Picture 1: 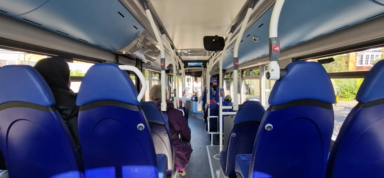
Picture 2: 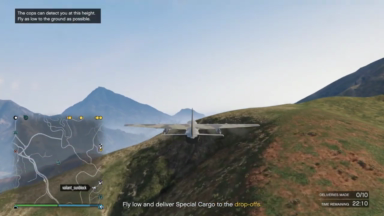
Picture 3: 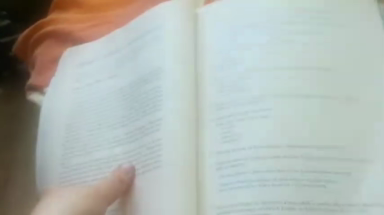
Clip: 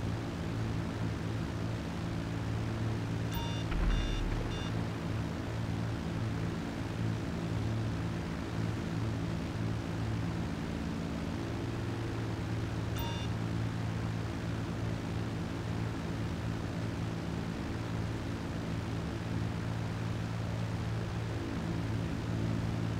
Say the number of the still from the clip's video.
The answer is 2